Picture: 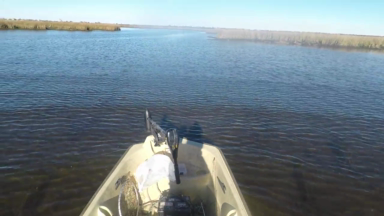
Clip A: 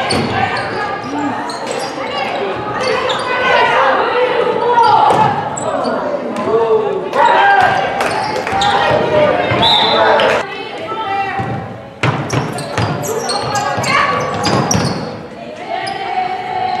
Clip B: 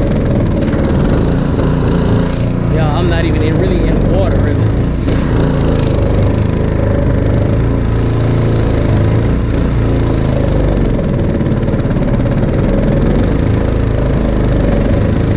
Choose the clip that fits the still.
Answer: B